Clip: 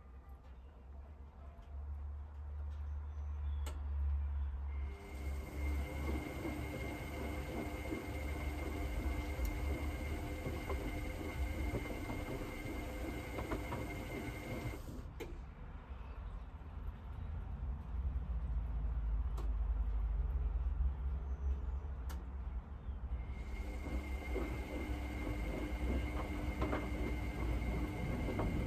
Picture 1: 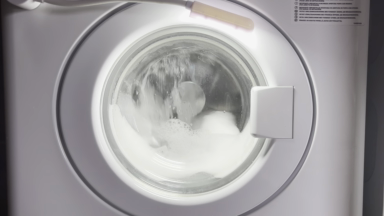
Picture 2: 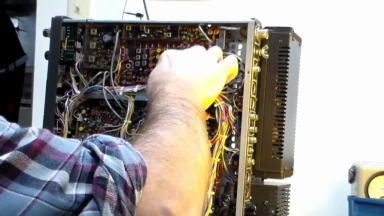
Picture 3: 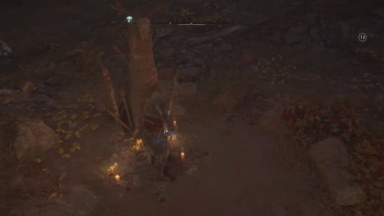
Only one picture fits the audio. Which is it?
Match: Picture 1